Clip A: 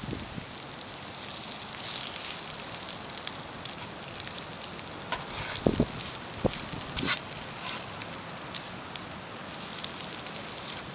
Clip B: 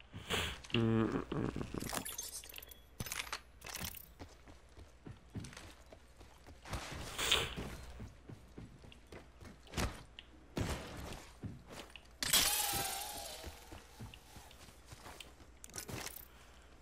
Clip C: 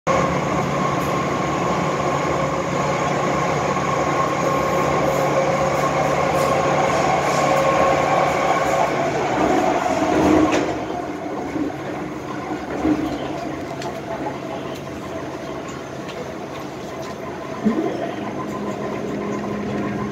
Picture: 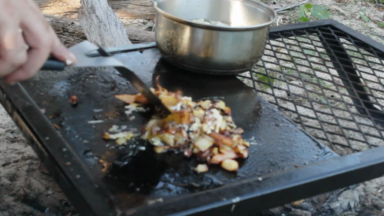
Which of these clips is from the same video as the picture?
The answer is A